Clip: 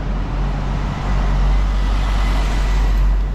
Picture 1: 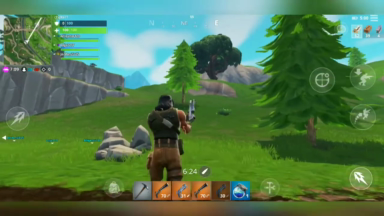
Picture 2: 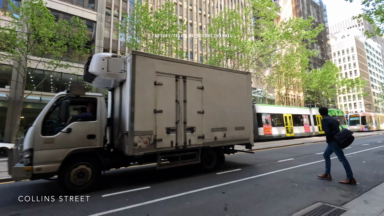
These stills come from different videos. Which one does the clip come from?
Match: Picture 2